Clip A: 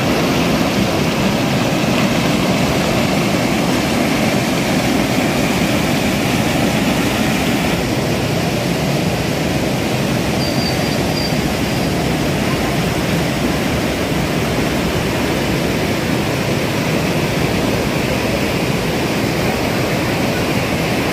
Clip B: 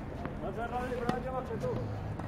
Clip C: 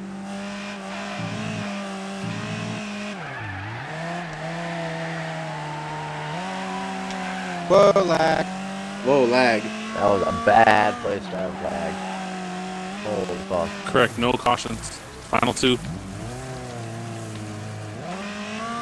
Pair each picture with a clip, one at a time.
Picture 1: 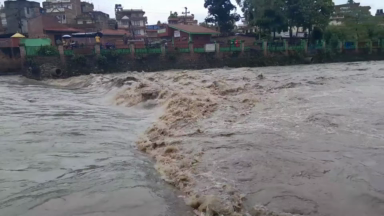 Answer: A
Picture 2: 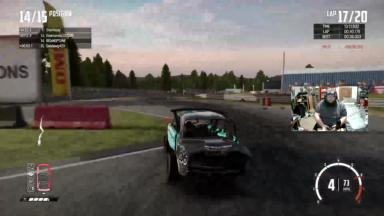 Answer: C